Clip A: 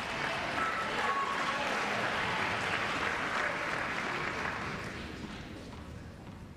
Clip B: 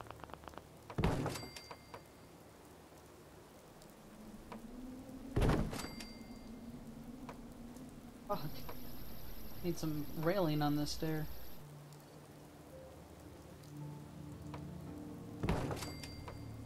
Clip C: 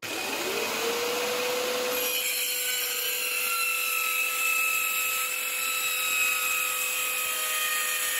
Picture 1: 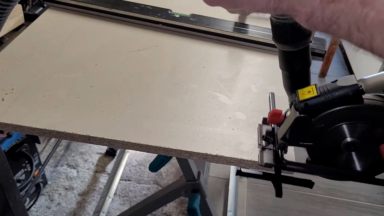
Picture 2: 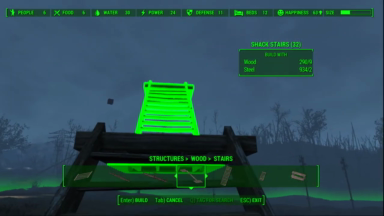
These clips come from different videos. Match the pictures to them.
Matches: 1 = C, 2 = B